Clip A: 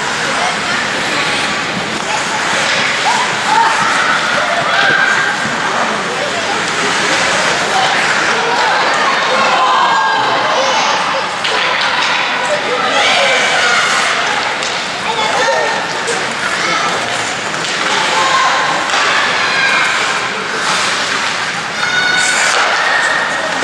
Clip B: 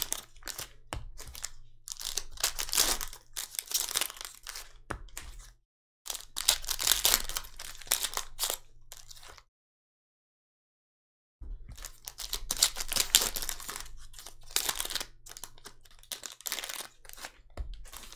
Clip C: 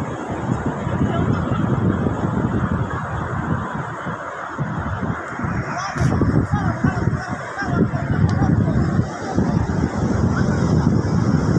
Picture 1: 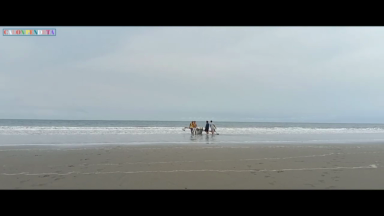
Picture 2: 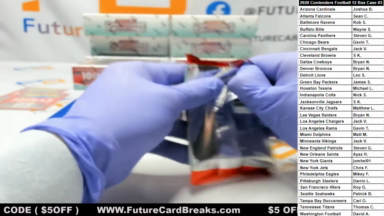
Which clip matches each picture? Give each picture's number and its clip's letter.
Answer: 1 C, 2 B